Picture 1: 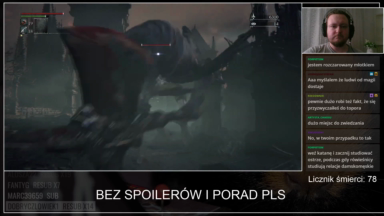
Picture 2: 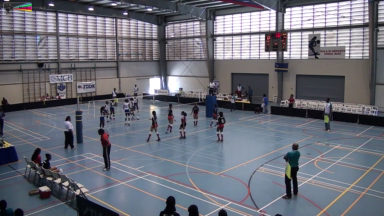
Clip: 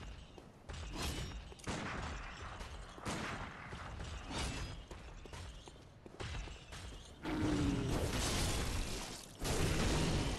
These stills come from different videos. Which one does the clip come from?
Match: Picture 1